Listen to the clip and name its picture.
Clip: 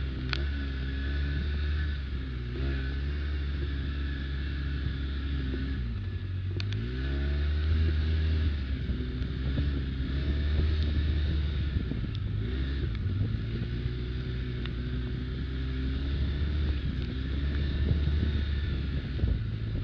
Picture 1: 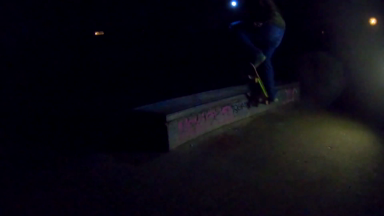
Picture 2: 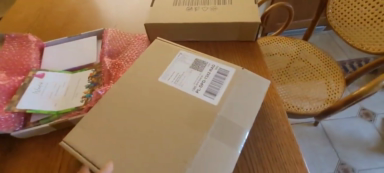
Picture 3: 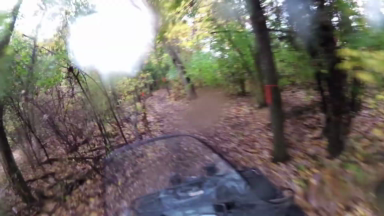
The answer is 3